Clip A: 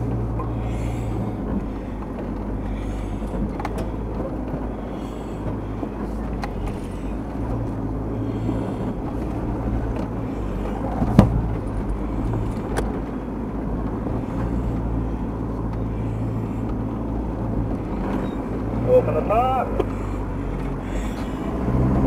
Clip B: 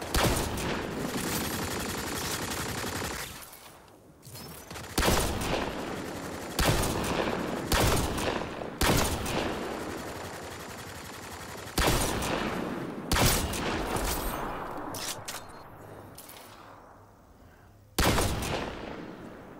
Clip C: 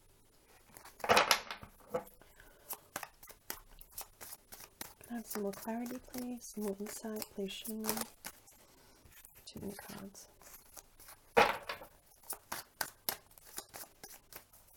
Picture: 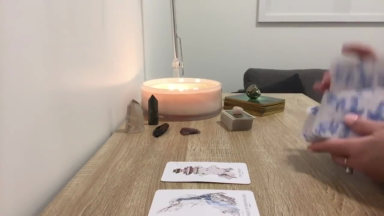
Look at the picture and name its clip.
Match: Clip C